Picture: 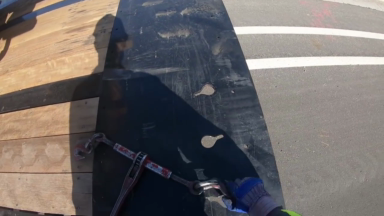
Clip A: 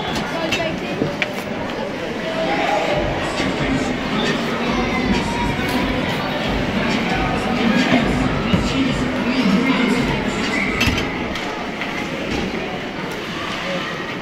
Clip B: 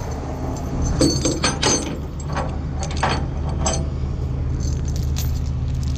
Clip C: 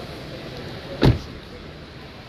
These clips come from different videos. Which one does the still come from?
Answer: B